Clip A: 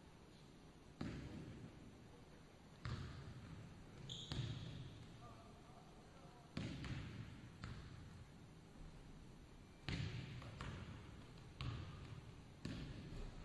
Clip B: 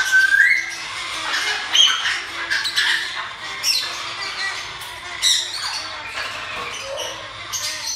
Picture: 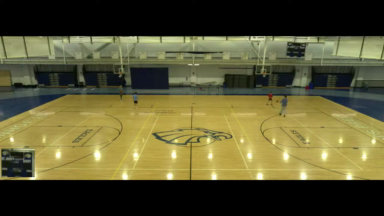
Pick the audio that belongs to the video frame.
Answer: A